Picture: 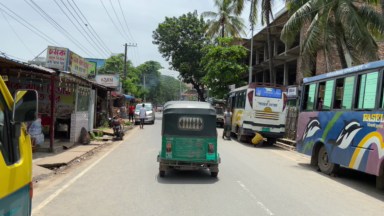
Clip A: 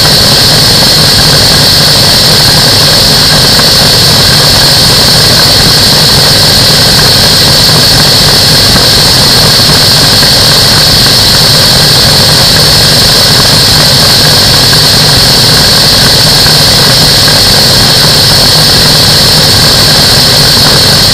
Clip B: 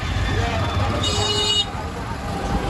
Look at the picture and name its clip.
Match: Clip B